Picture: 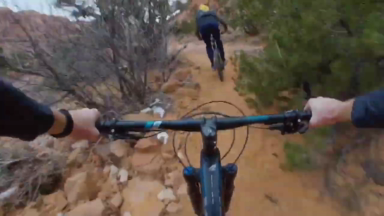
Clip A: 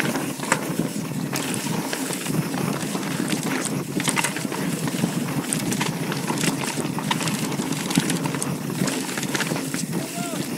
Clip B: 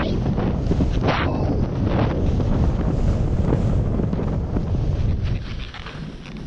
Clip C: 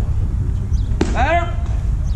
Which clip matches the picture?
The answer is A